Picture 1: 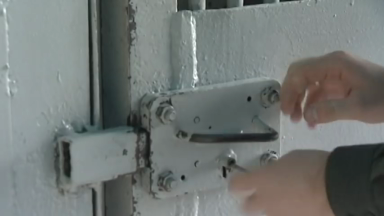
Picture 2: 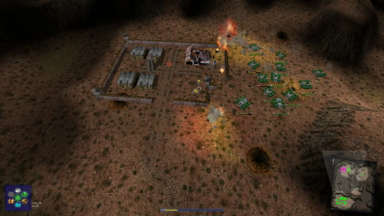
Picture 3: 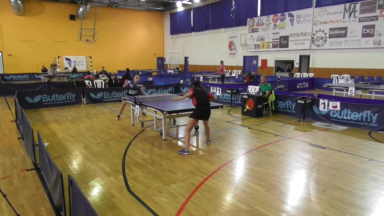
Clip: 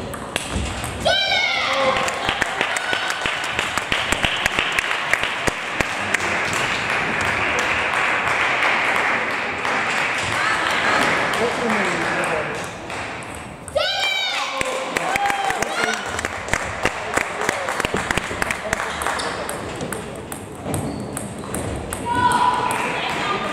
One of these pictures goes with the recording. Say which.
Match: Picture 3